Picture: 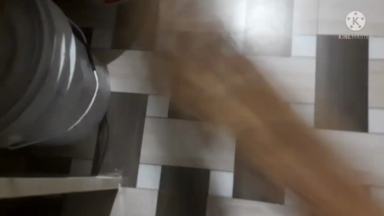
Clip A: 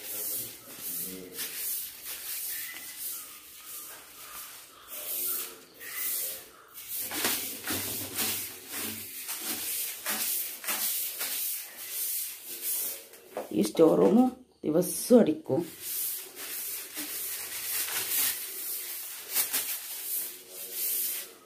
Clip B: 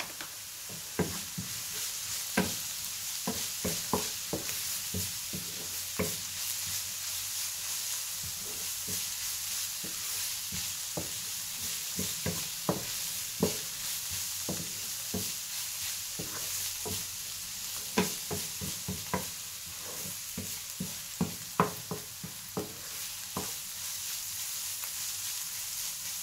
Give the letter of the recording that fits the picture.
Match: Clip A